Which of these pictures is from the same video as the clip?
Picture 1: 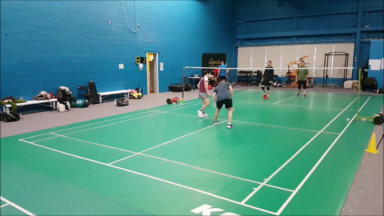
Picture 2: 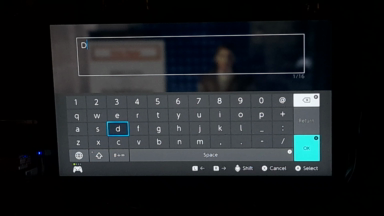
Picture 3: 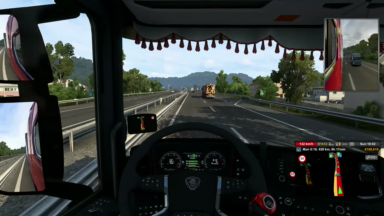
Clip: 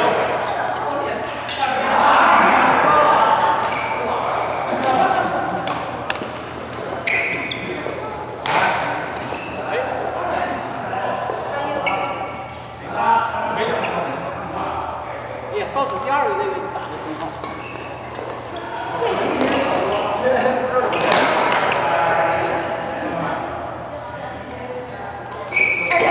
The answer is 1